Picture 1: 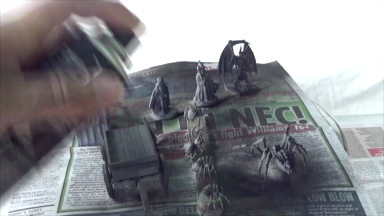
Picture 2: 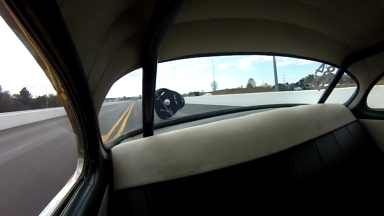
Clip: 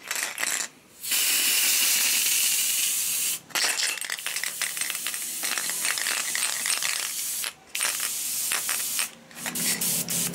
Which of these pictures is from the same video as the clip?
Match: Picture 1